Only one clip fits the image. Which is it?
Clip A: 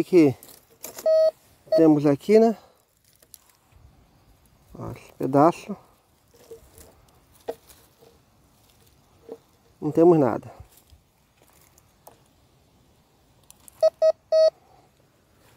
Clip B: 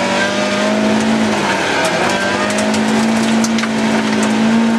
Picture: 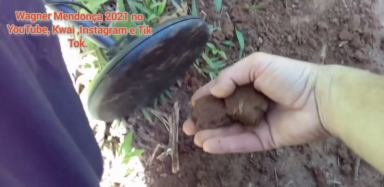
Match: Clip A